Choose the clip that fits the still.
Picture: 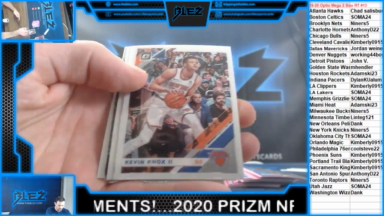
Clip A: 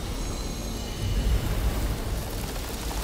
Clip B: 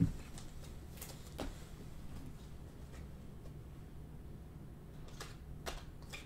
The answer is B